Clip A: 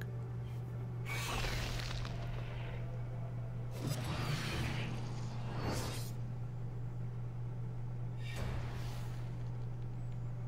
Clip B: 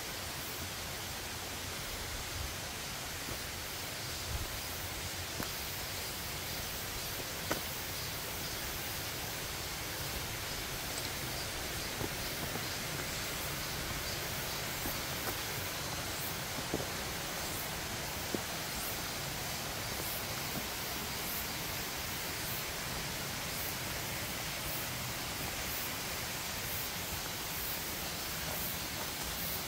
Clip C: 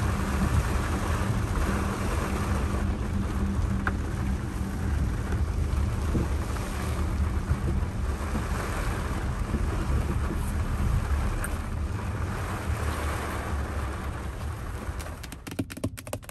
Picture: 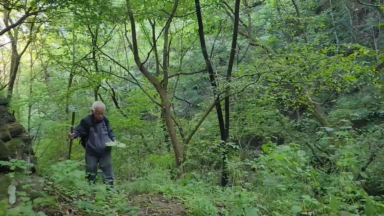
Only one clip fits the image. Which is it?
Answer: B